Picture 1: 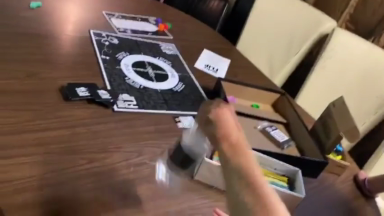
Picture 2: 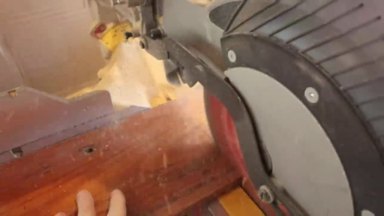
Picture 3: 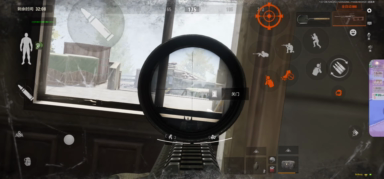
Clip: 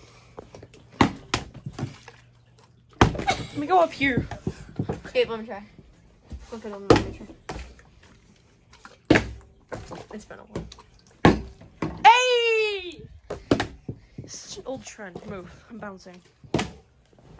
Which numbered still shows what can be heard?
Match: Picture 1